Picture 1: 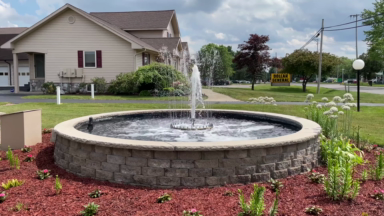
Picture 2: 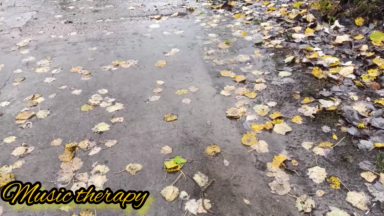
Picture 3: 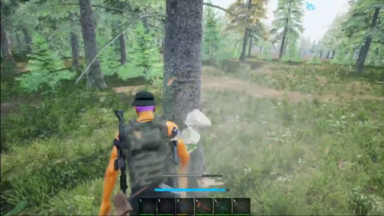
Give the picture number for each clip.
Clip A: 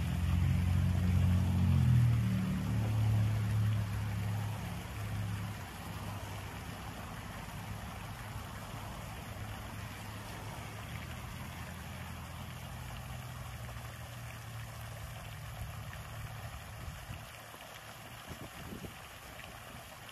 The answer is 1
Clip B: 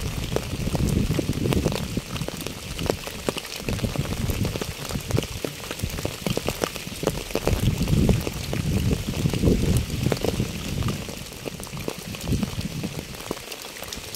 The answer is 2